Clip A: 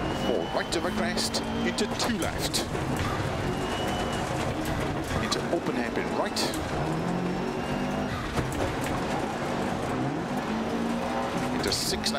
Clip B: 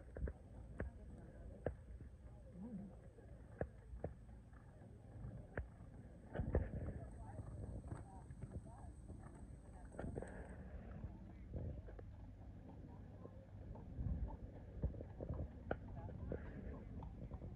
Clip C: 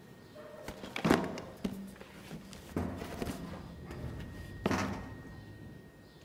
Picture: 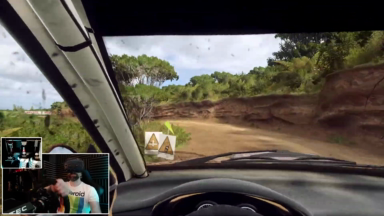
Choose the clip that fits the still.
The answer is A